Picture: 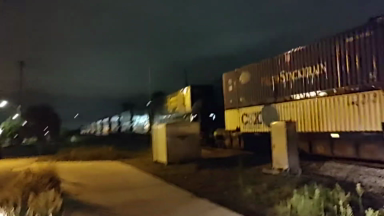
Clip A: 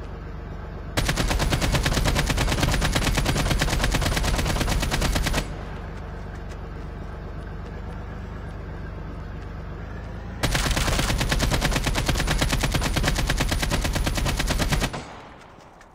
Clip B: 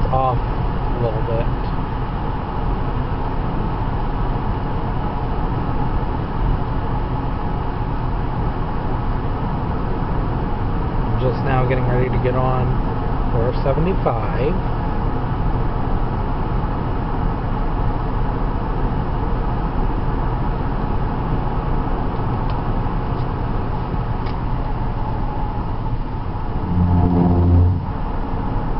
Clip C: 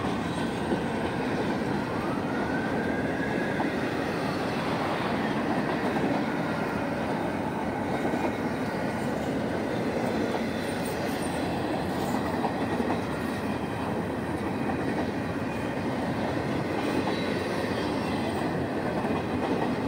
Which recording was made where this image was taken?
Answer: C